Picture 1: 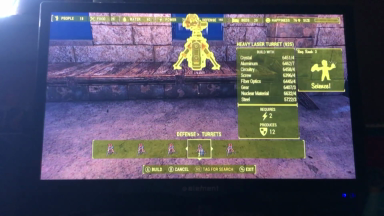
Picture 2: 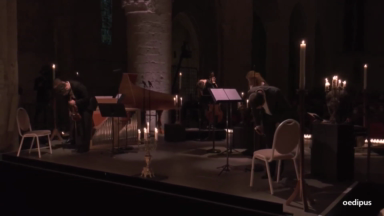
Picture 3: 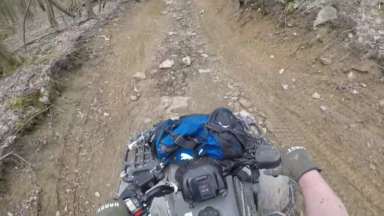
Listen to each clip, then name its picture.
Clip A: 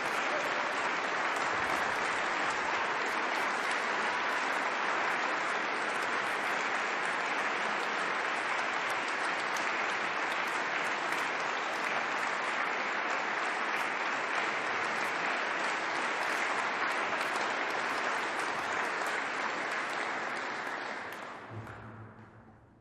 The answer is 2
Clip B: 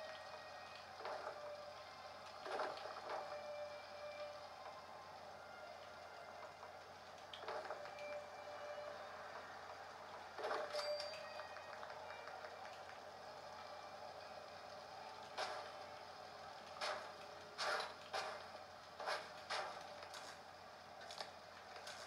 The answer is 1